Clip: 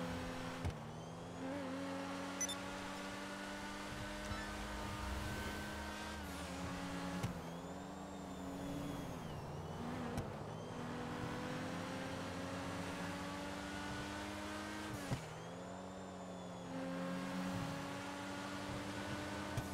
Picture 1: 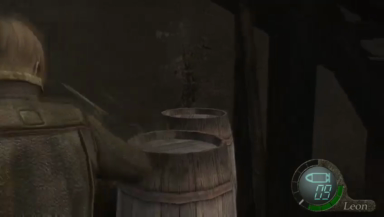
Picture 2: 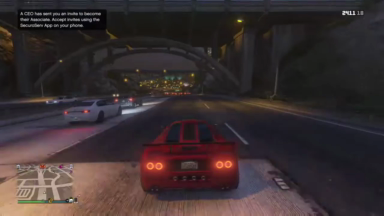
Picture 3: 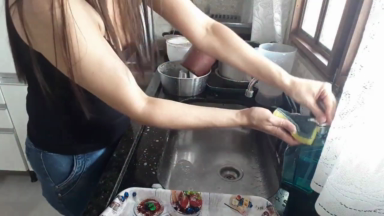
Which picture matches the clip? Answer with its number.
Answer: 2